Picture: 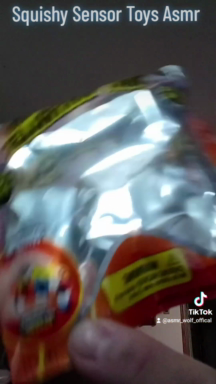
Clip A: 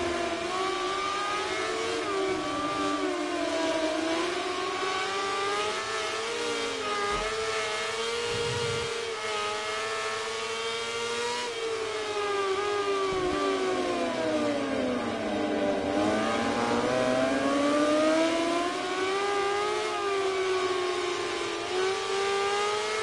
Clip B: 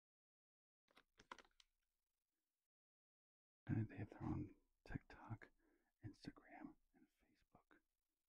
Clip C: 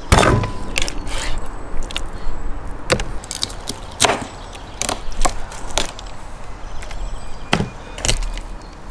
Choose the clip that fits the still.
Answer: B